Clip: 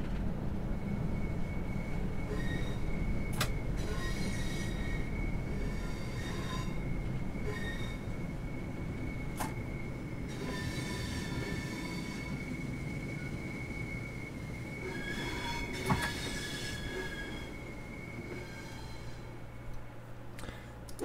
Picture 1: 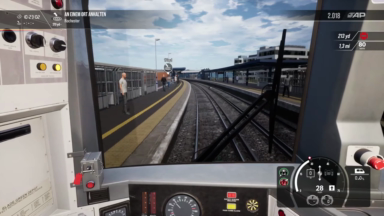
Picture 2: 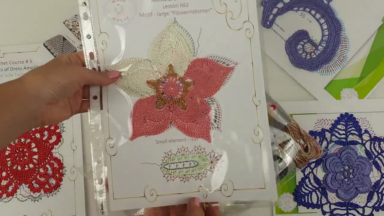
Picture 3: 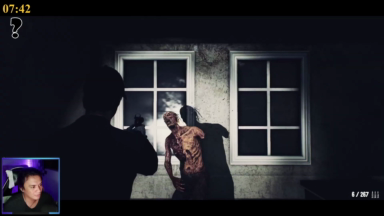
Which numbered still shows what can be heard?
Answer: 1